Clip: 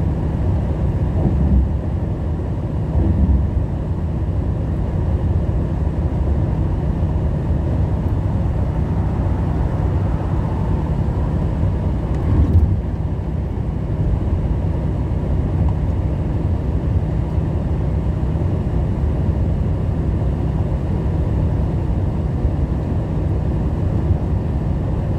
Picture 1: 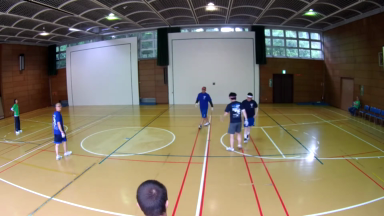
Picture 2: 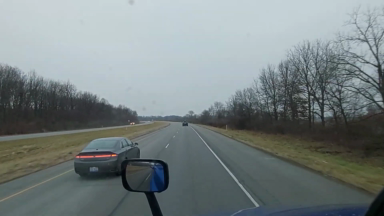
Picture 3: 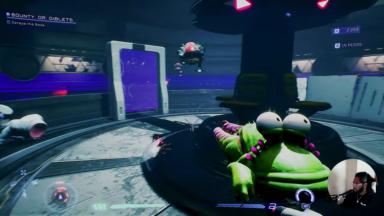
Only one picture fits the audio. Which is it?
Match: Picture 2